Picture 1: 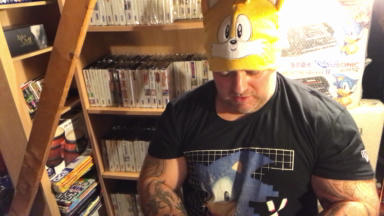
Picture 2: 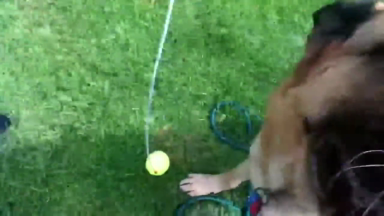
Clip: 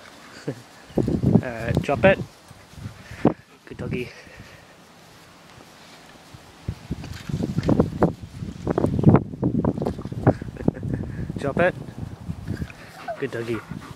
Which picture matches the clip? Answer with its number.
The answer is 2